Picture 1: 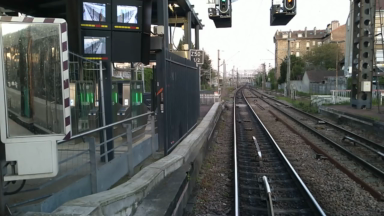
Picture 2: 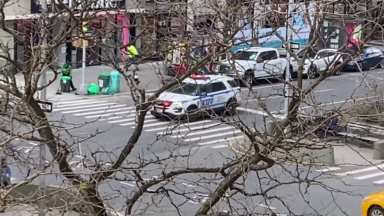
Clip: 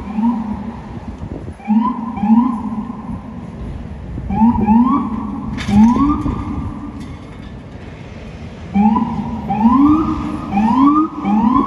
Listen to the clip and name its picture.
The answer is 2